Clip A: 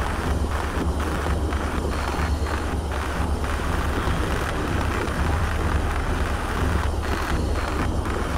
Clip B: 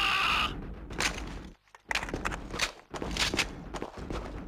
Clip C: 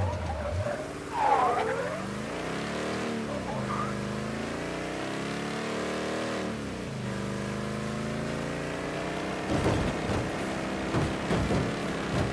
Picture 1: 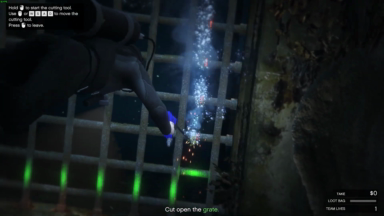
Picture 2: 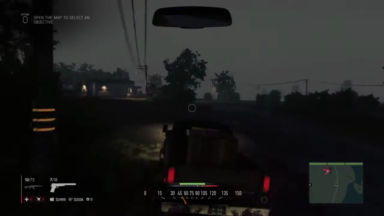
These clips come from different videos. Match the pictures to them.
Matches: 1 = A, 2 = C